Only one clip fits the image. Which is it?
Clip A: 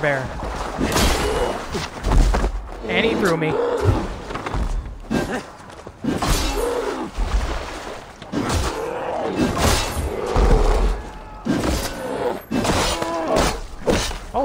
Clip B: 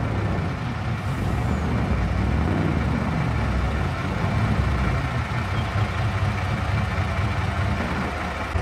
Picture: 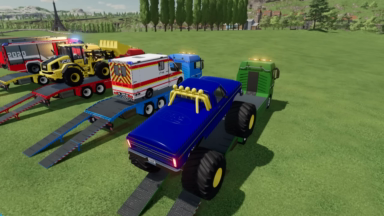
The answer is B